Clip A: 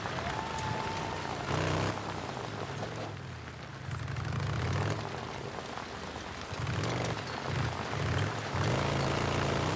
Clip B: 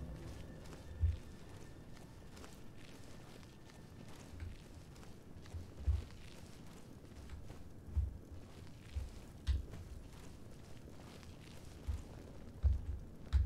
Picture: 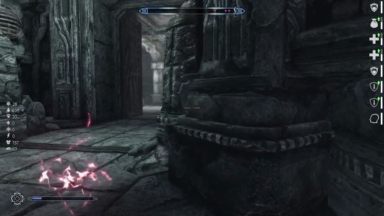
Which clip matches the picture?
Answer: B